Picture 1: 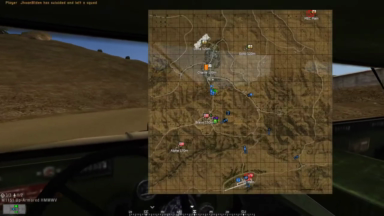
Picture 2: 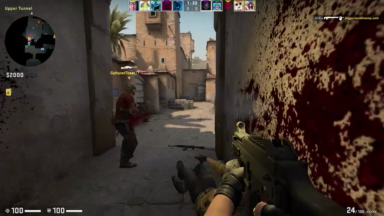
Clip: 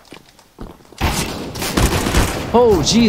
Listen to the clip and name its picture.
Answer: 2